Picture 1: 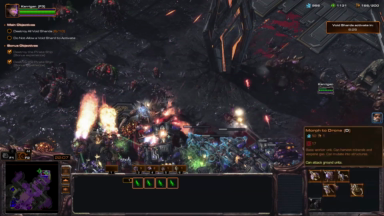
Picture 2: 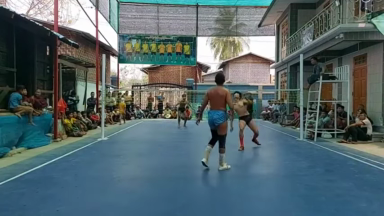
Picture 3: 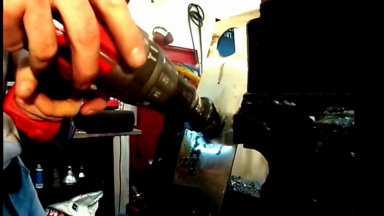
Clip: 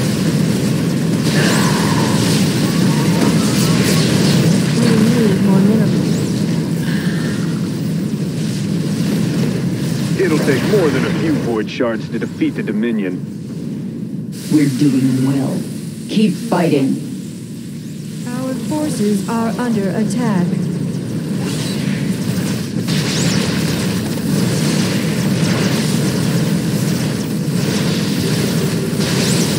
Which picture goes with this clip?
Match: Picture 1